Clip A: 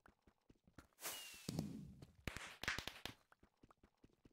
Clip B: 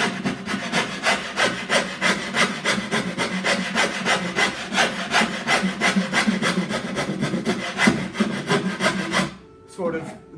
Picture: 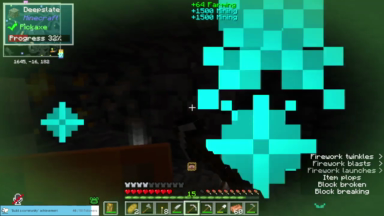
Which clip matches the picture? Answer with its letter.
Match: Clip A